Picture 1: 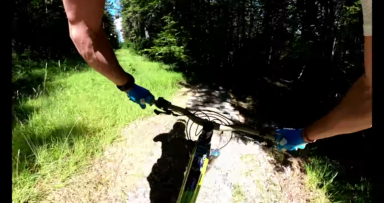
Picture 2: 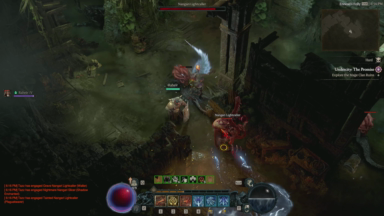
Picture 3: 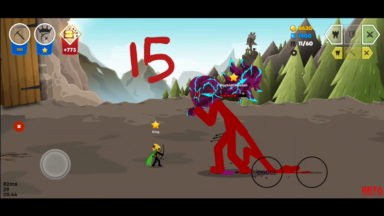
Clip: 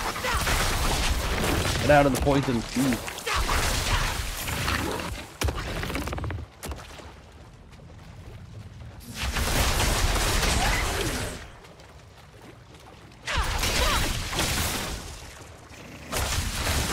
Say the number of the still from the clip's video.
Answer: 2